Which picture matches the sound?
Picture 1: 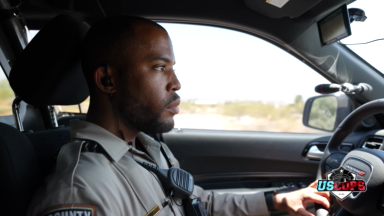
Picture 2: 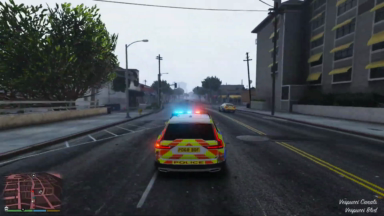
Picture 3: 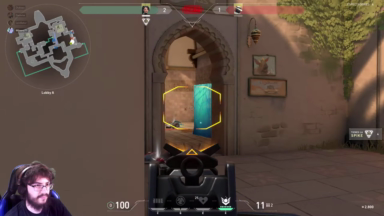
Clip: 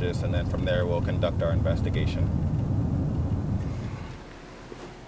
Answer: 1